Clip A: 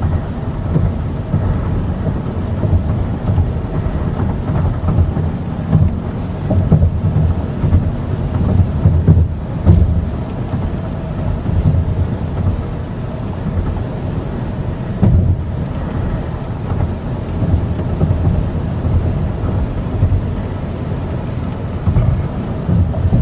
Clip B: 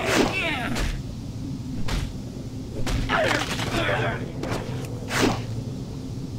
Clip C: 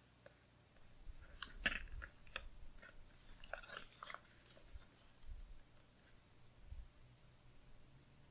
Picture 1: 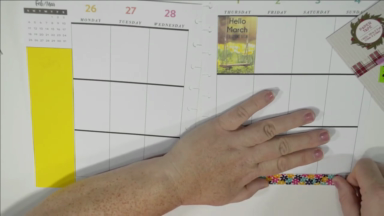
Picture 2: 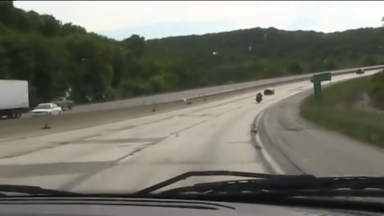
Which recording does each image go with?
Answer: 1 C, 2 A